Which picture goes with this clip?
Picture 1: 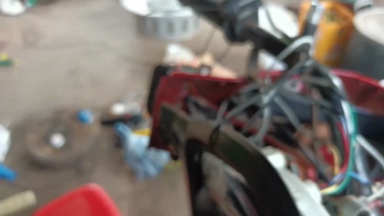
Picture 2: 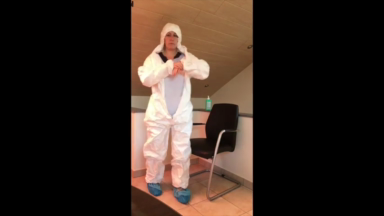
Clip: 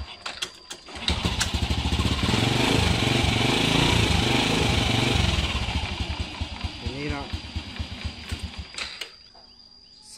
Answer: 1